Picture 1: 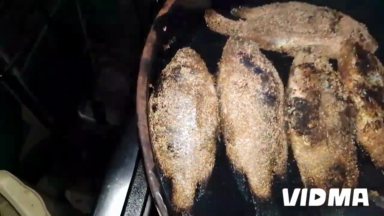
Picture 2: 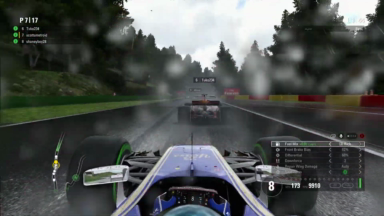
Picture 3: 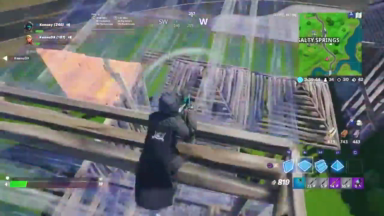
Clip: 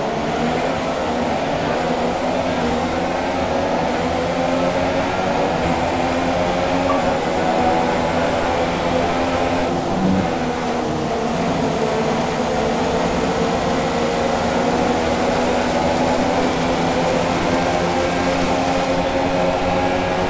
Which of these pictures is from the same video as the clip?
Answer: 2